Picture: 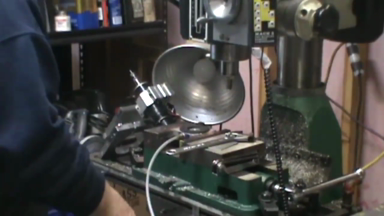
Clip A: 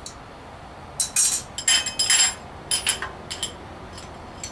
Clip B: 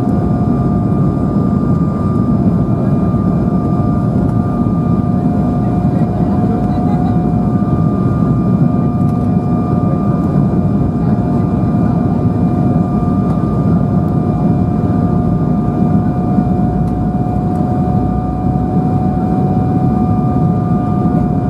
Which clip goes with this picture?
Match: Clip A